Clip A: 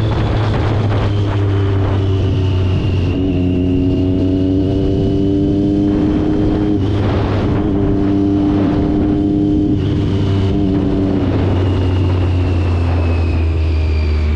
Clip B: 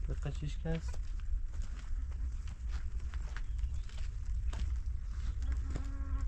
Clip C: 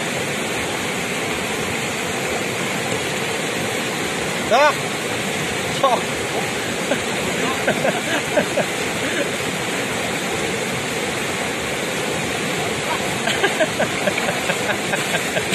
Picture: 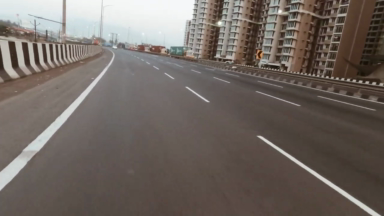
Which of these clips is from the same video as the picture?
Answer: A